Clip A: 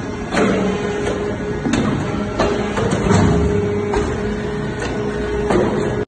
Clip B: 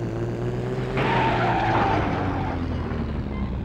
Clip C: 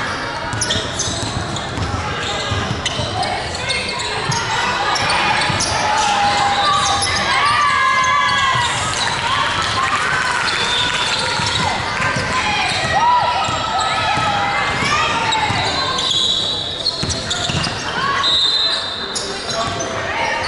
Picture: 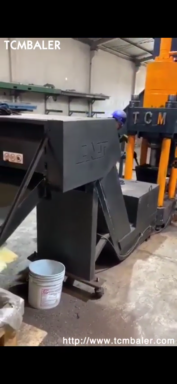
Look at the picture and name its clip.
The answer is A